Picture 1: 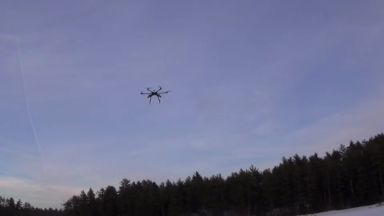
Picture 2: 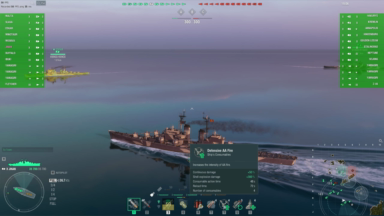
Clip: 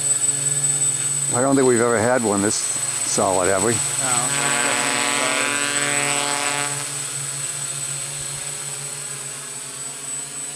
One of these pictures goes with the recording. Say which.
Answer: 1